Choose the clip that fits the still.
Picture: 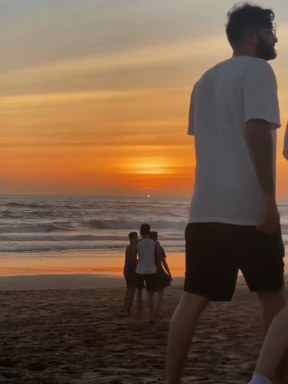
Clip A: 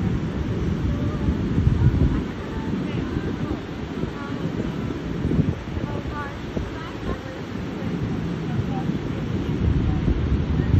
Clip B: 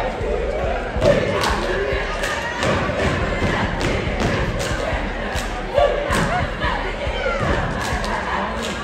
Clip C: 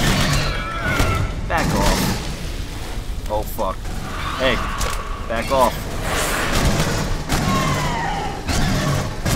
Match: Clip A